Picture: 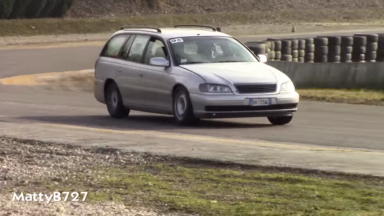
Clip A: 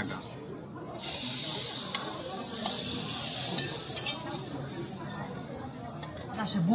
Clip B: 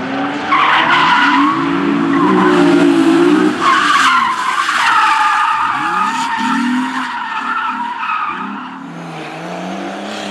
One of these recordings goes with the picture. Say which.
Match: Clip B